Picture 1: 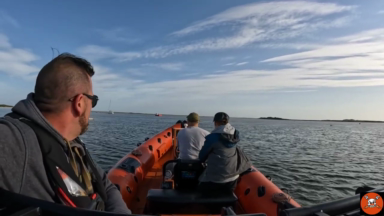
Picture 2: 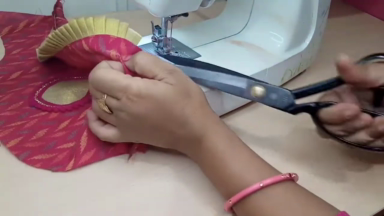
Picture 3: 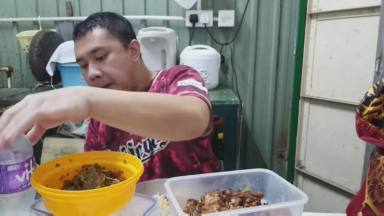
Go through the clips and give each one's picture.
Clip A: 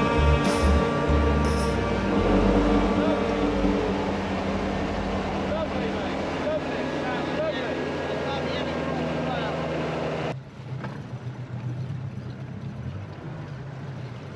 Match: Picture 1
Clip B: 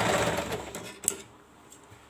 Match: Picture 2